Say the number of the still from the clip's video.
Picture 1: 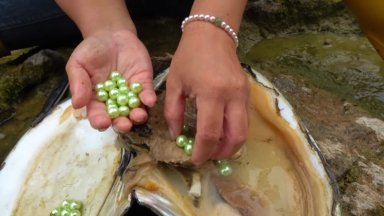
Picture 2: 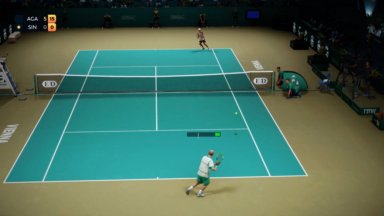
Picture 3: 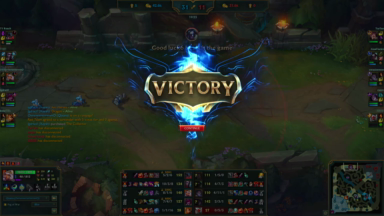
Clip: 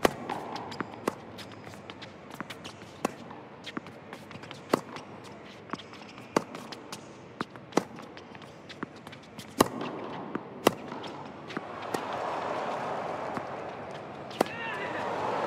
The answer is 2